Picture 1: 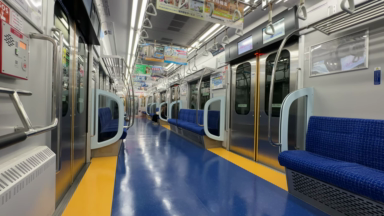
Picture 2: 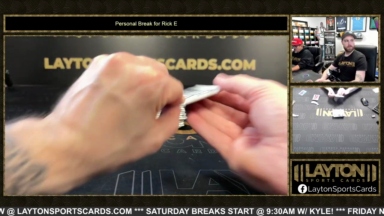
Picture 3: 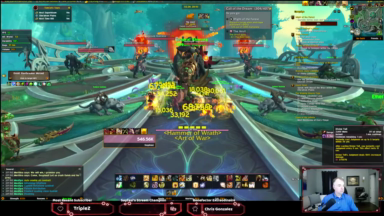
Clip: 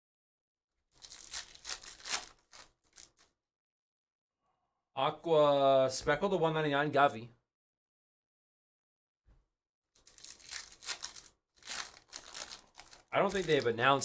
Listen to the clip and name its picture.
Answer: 2